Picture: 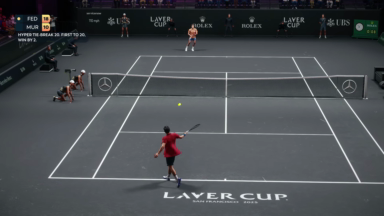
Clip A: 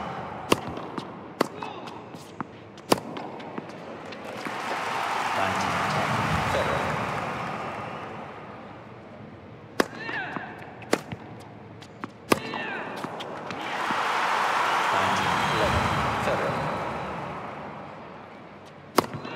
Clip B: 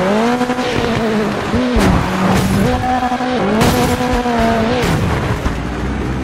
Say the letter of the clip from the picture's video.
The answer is A